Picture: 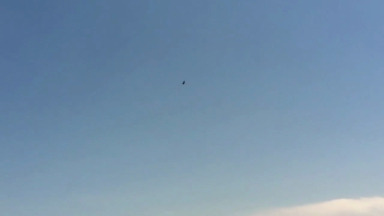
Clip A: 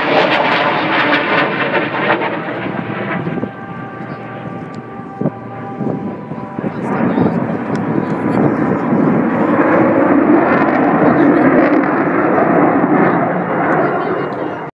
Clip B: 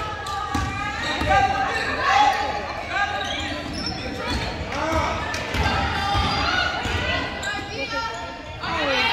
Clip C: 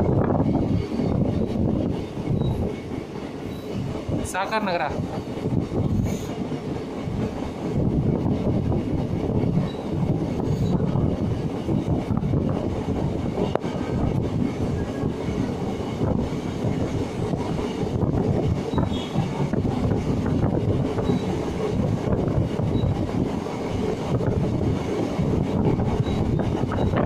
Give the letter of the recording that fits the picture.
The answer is A